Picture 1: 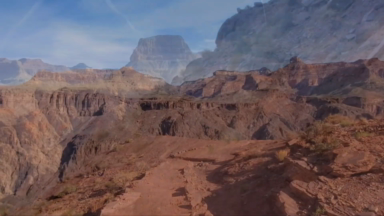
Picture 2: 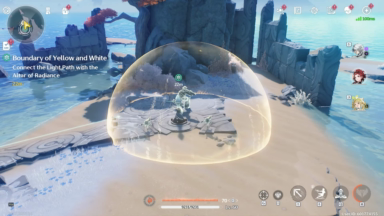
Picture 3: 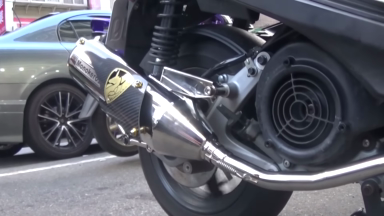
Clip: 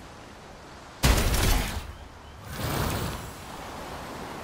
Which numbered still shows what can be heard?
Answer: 2